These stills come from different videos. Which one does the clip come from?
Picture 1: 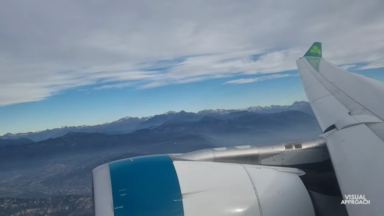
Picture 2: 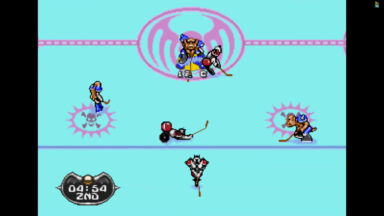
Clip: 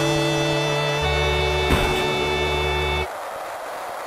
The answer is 2